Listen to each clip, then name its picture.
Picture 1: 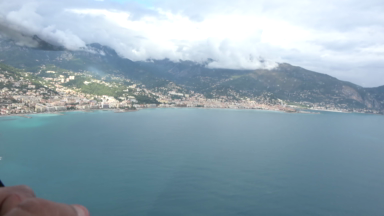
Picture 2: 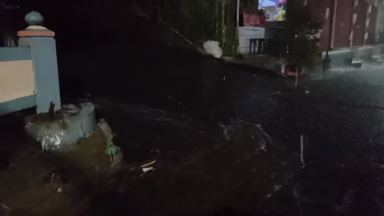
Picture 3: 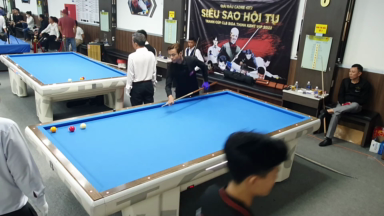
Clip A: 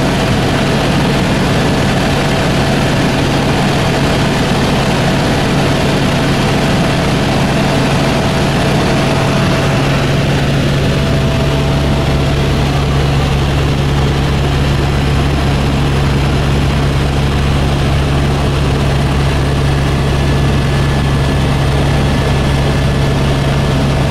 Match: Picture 1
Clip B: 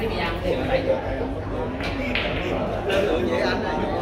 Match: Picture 3